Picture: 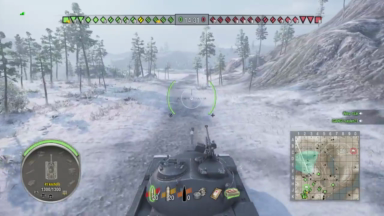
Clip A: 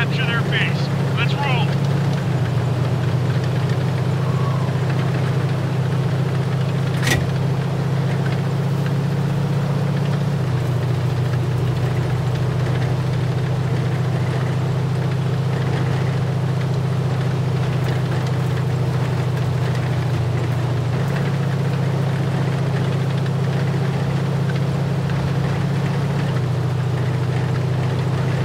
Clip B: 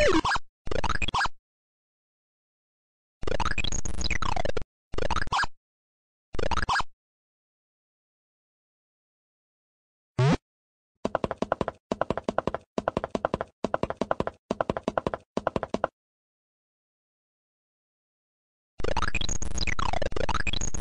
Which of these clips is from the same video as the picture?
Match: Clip A